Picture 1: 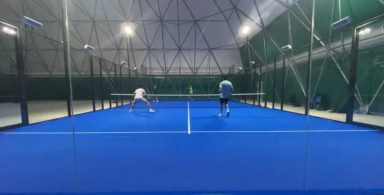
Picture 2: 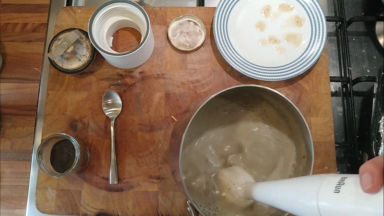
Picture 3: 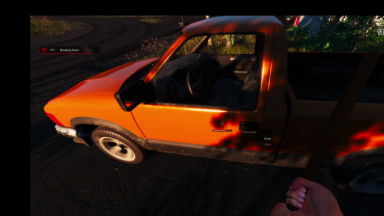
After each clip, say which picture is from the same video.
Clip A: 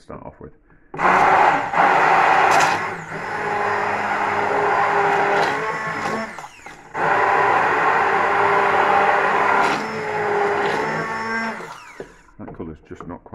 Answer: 2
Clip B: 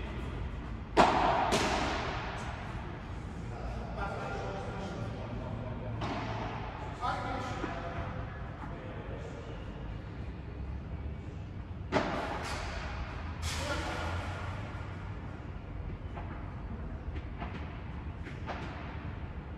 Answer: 1